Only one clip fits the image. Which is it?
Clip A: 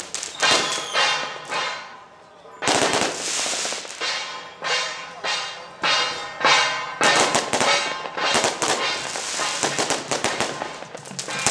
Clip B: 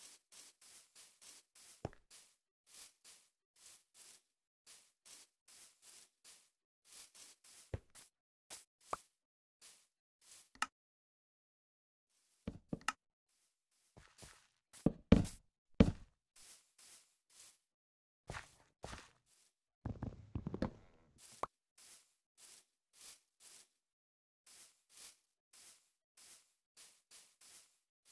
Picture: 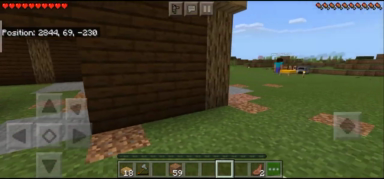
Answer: B